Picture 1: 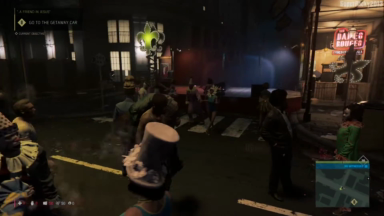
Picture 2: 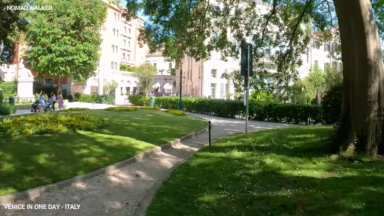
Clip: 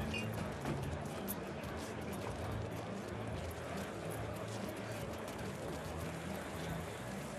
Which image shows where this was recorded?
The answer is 1